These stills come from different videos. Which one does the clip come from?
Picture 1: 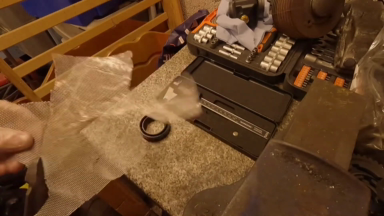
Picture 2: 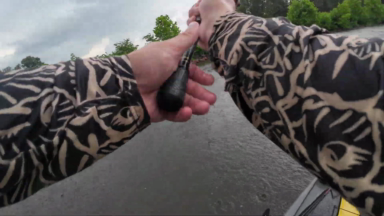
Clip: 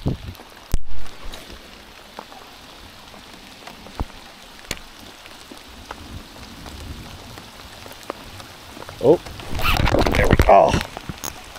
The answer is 2